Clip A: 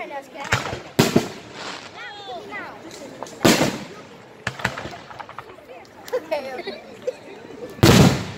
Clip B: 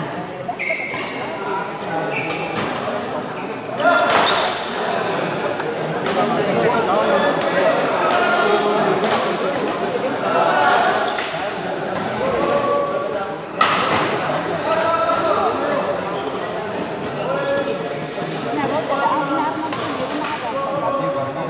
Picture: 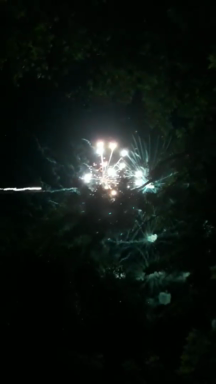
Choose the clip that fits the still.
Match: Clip A